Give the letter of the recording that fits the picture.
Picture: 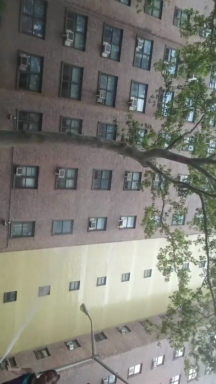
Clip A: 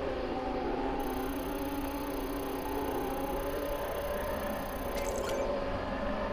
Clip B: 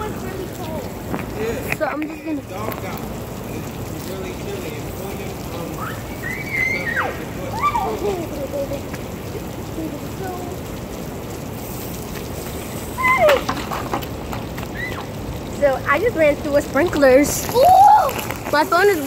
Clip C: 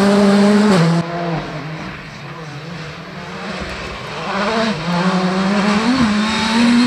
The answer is B